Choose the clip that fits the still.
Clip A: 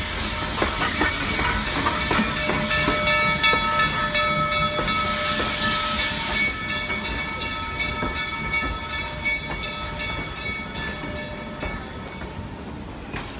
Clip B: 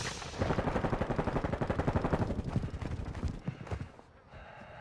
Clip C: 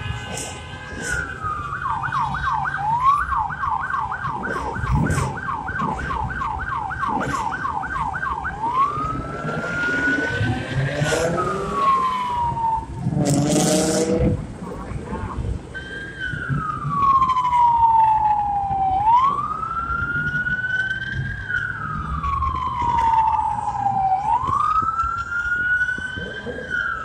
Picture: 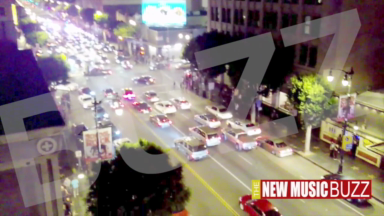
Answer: C